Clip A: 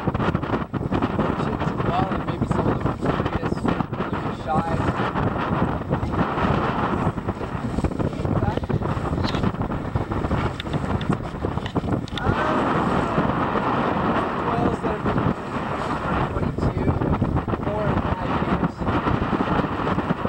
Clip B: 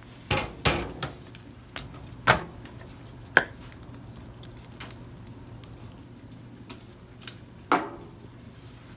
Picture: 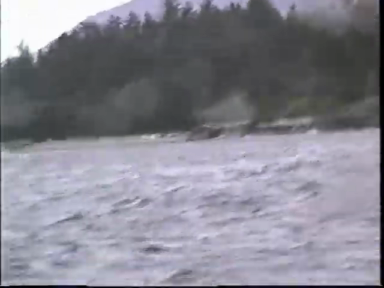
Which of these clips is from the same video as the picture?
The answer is A